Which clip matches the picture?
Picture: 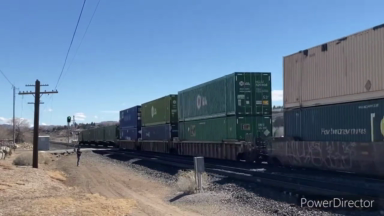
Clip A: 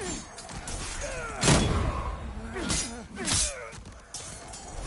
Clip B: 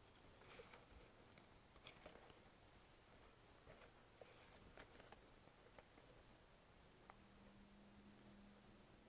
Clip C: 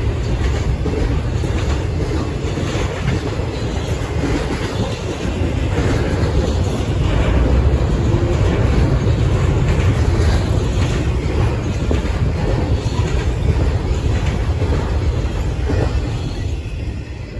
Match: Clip C